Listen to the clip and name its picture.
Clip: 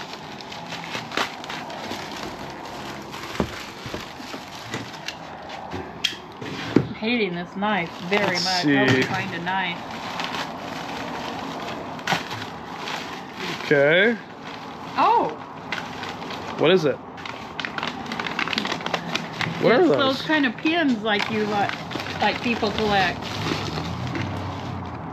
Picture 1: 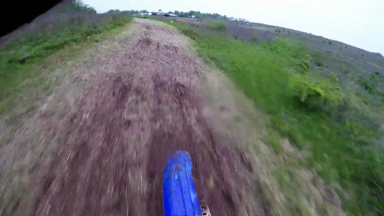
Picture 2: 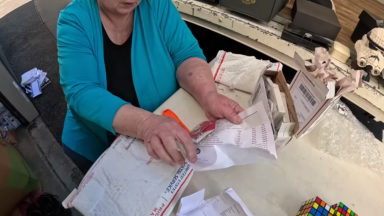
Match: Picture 2